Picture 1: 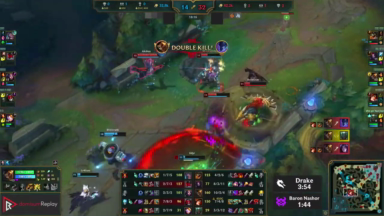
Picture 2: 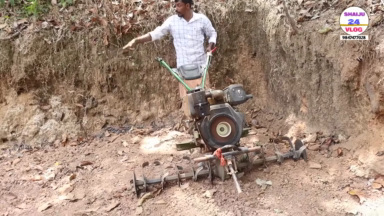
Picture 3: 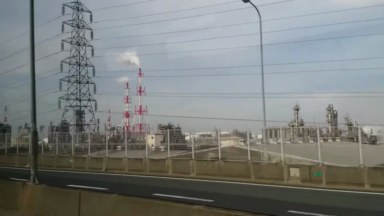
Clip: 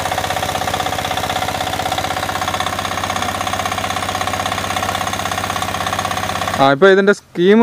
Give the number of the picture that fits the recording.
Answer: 2